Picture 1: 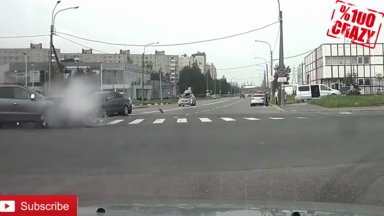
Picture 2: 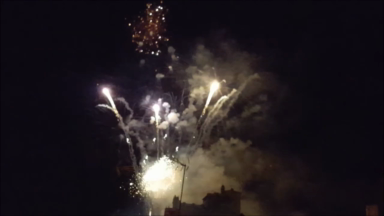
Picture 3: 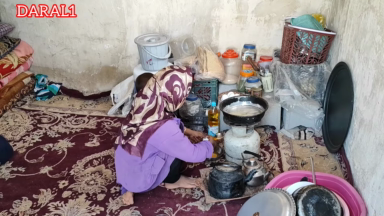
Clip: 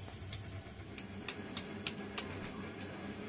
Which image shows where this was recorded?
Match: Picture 3